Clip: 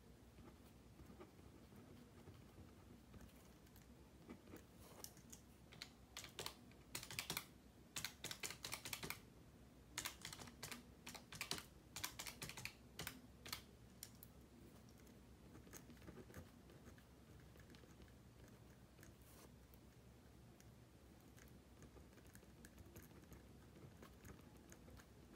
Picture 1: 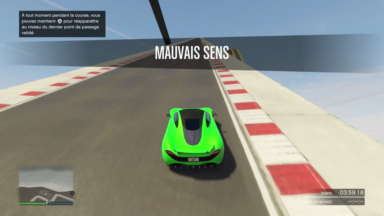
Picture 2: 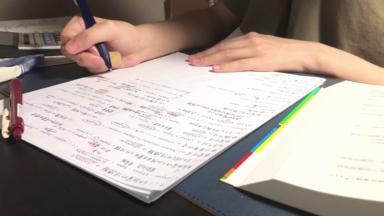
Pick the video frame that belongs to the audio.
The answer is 2